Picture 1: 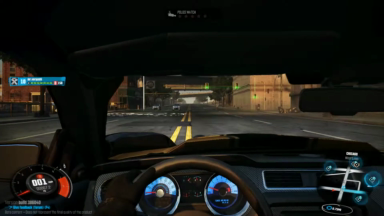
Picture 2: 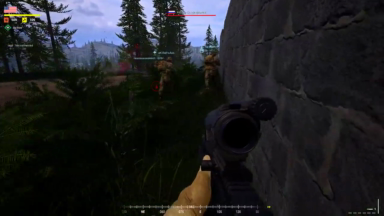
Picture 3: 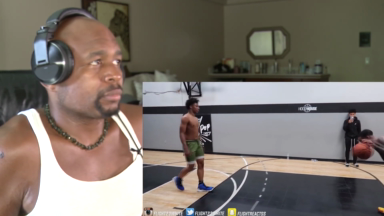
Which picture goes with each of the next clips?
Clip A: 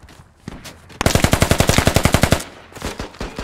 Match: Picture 2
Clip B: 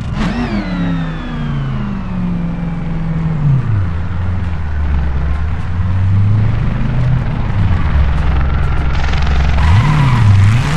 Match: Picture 1